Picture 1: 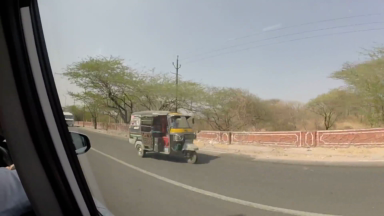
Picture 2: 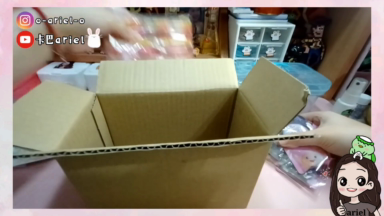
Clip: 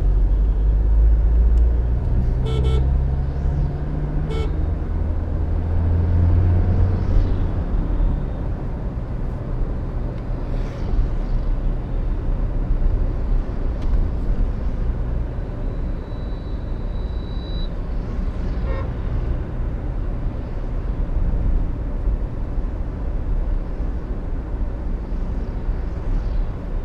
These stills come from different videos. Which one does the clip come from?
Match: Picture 1